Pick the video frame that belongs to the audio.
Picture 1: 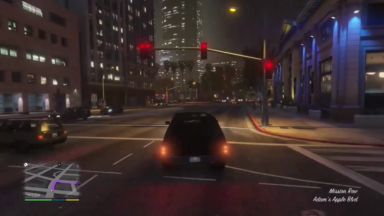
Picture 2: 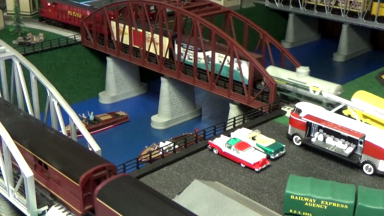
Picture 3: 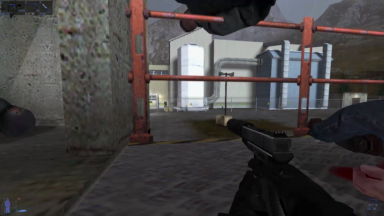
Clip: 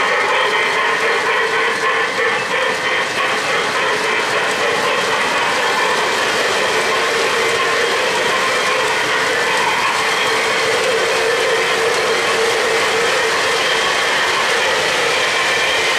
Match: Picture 2